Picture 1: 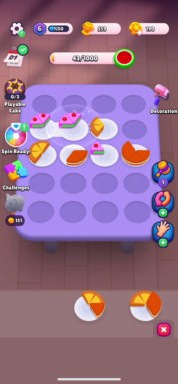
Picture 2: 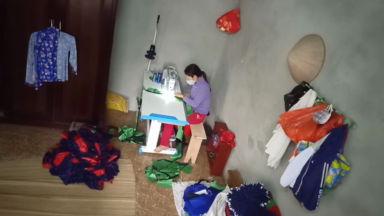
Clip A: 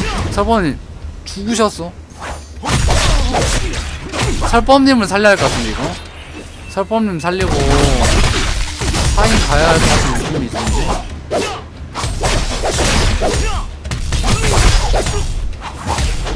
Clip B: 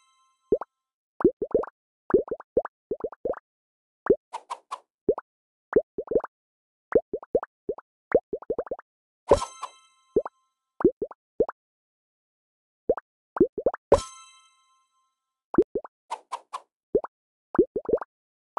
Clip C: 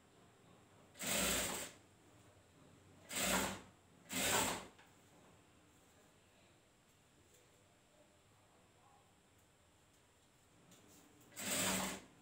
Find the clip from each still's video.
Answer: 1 B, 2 C